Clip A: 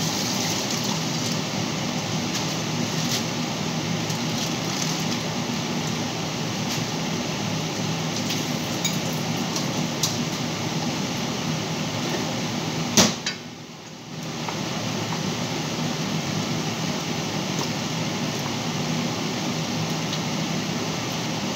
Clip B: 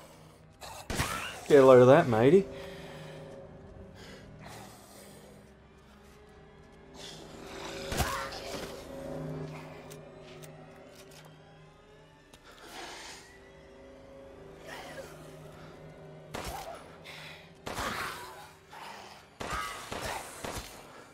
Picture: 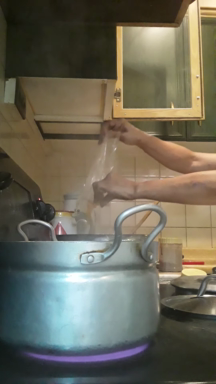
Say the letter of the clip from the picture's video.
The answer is A